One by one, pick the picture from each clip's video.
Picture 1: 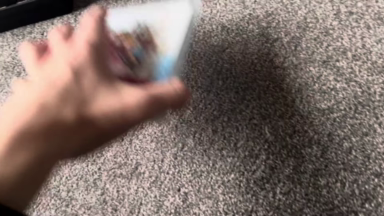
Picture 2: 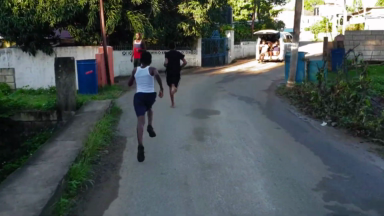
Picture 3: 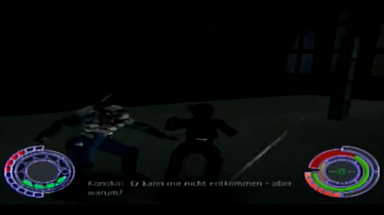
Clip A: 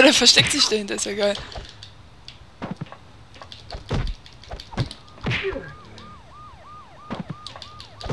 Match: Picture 3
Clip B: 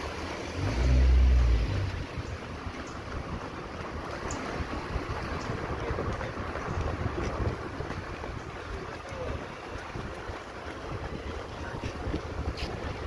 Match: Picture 2